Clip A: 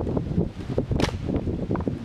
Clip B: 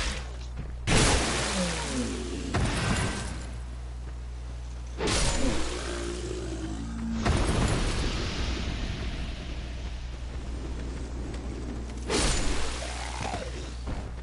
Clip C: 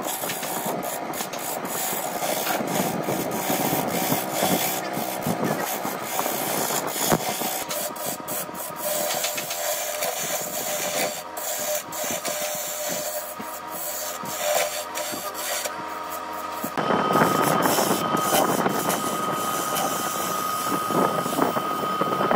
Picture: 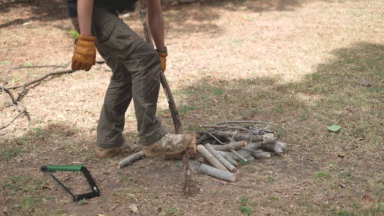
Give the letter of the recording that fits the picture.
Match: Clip A